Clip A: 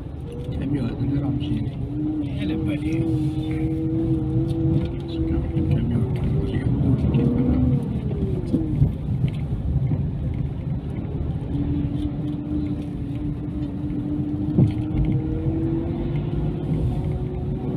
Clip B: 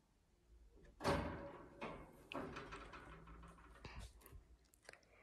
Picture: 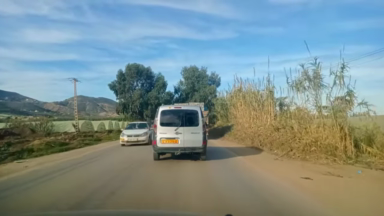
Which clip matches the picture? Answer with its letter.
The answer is A